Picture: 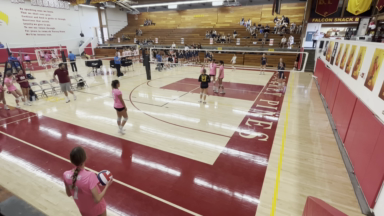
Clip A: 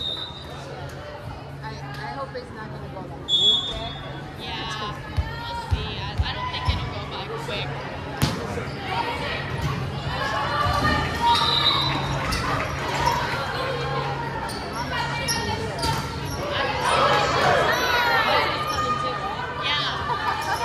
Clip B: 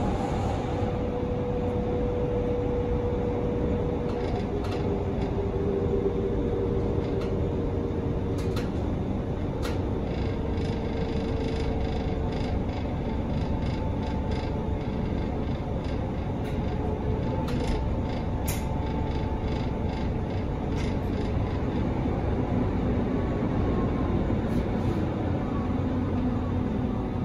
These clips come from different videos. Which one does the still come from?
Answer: A